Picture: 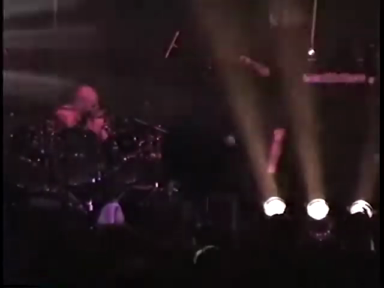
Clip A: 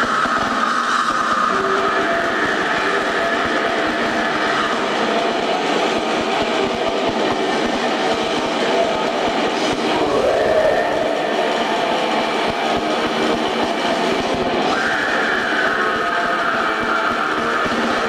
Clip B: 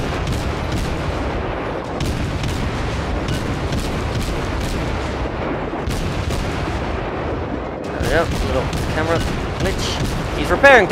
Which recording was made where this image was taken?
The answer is A